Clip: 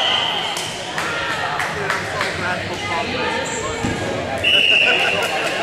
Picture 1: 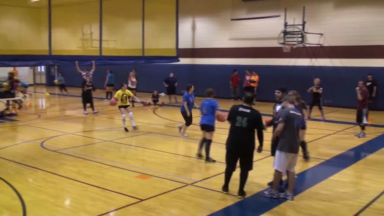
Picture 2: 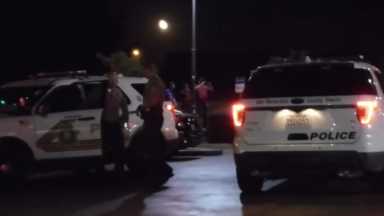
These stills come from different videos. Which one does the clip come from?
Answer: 1